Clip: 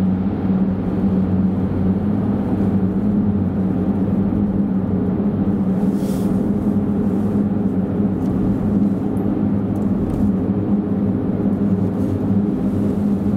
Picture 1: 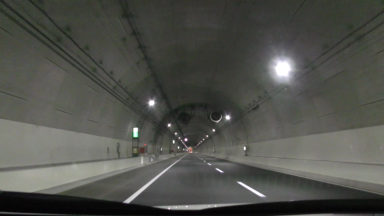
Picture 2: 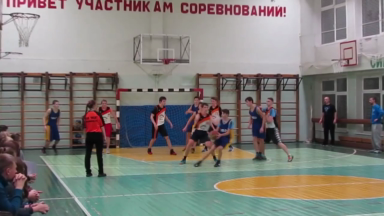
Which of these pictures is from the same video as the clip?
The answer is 1